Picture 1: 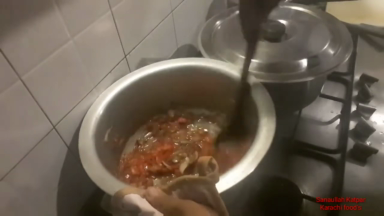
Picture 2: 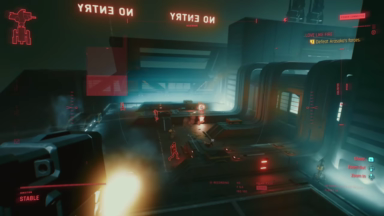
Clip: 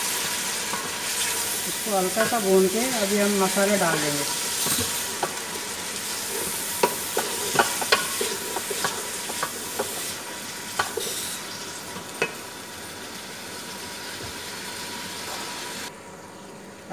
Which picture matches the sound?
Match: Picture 1